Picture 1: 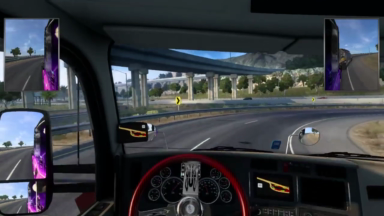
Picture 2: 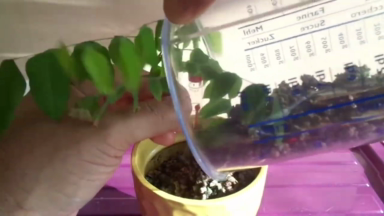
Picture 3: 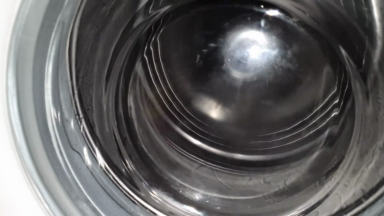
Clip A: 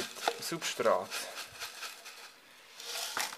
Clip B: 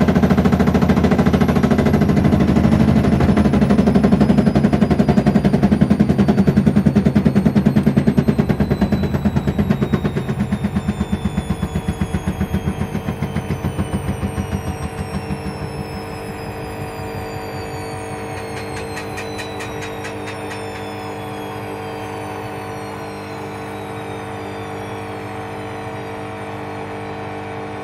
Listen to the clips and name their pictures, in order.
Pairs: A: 2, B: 3